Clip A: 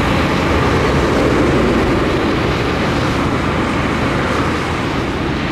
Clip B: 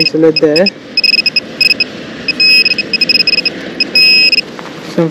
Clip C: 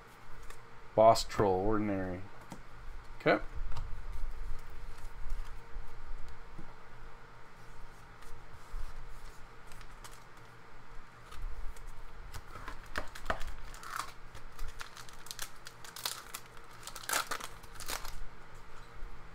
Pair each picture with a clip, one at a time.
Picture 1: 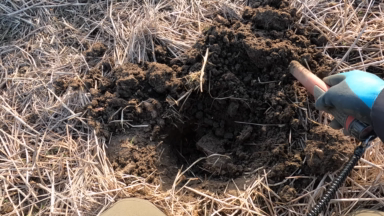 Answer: B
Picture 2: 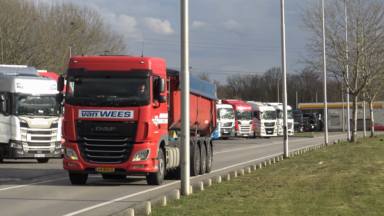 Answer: A